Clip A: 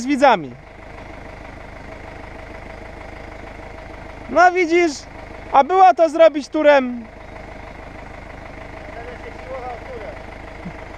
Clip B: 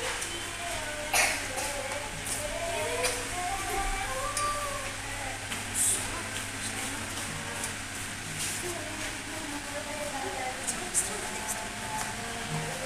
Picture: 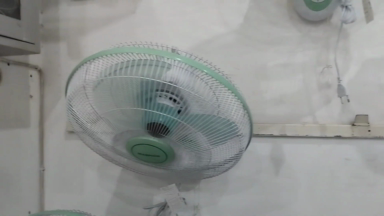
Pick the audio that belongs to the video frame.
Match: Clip B